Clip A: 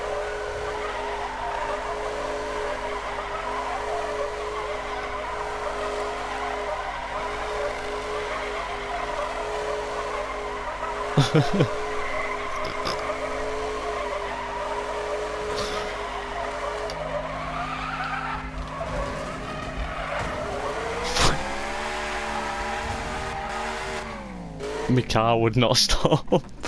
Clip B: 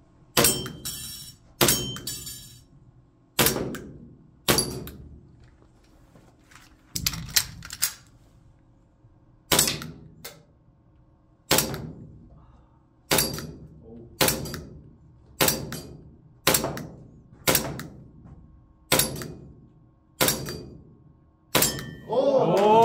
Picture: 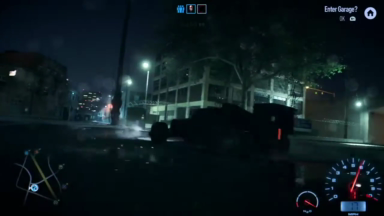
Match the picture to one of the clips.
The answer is A